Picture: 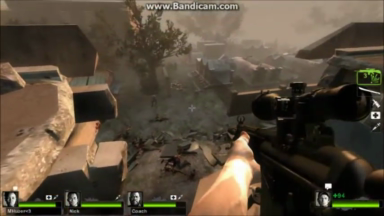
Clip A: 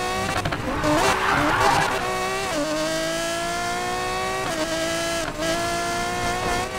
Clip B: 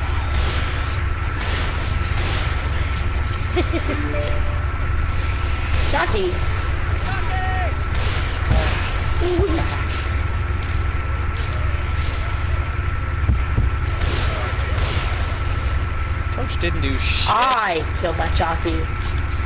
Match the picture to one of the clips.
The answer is B